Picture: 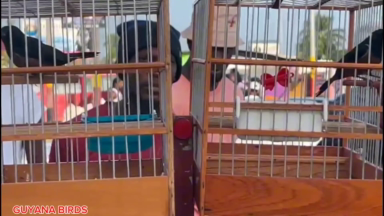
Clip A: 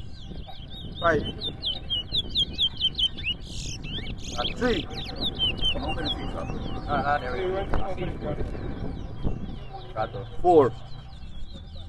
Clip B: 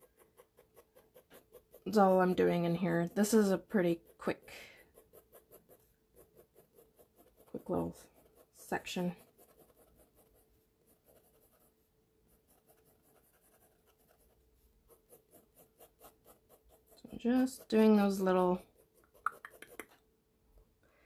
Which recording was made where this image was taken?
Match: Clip A